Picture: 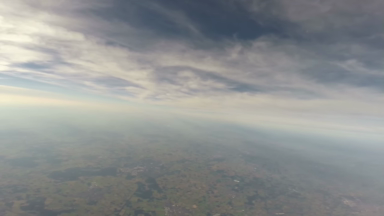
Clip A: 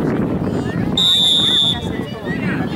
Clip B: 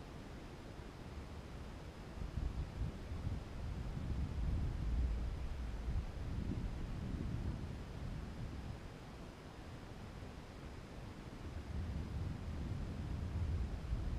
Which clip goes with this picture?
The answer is B